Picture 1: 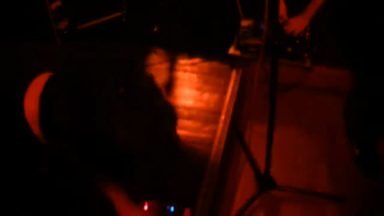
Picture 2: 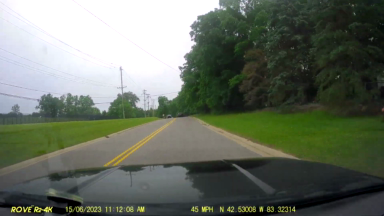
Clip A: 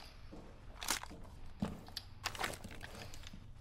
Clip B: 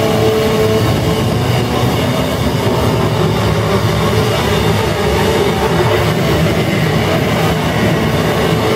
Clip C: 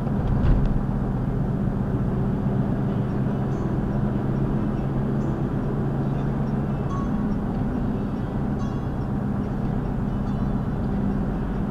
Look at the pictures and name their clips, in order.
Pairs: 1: B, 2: C